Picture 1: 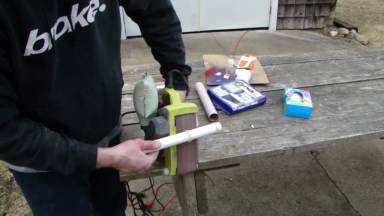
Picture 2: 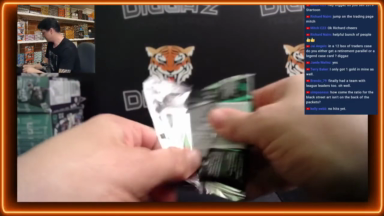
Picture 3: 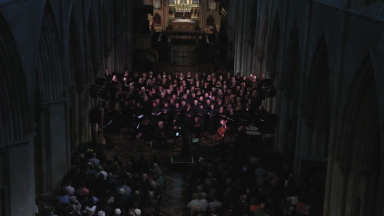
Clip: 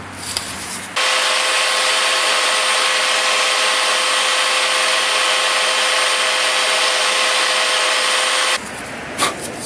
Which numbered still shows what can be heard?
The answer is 1